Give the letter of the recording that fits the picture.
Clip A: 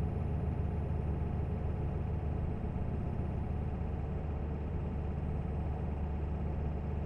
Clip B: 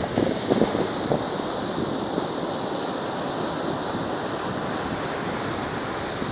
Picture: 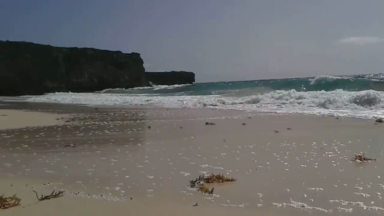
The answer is B